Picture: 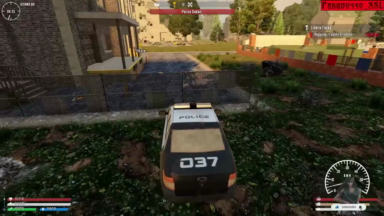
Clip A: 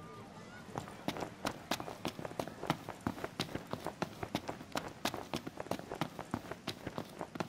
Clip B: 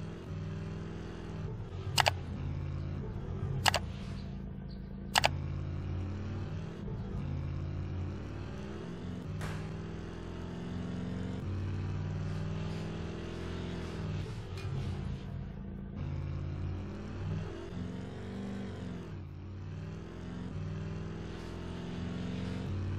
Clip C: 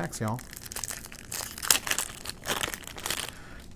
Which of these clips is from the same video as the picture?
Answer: B